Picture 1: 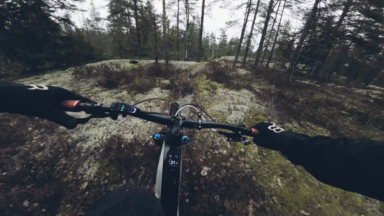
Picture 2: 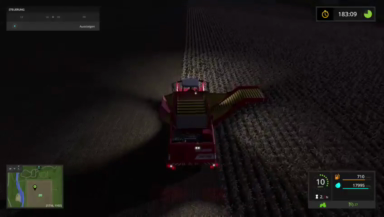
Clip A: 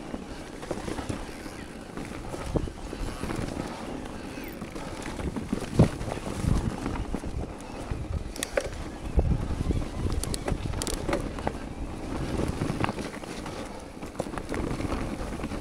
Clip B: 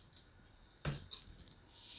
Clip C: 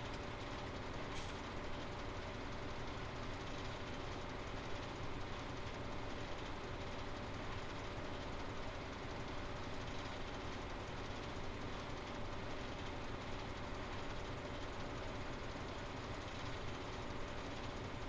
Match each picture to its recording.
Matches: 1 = A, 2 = C